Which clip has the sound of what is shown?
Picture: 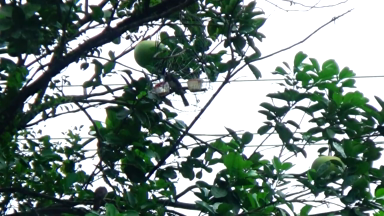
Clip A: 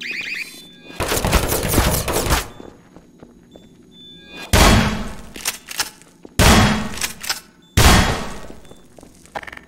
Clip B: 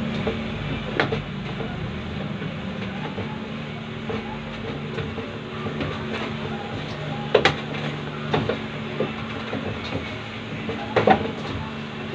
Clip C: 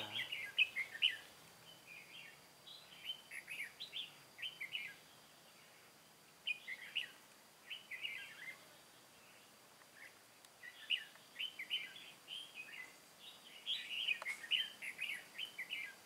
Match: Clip C